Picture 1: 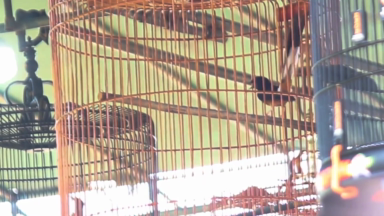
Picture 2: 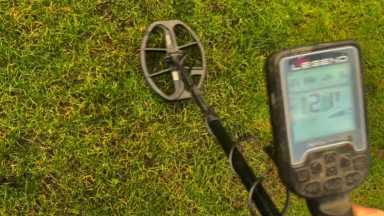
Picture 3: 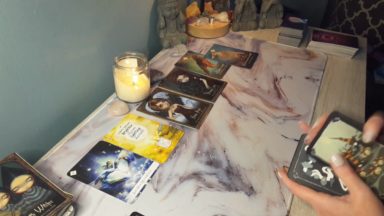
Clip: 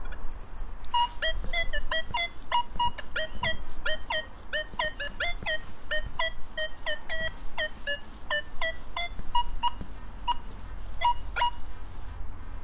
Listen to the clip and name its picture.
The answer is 2